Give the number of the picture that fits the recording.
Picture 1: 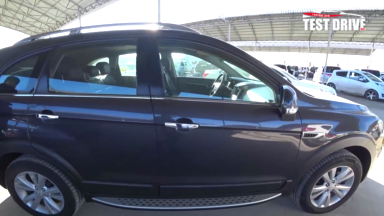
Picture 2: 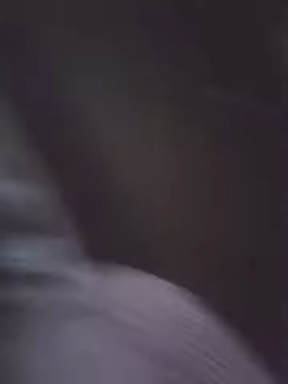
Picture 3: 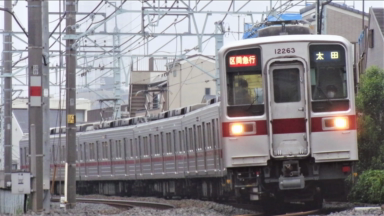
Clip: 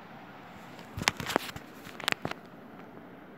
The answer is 2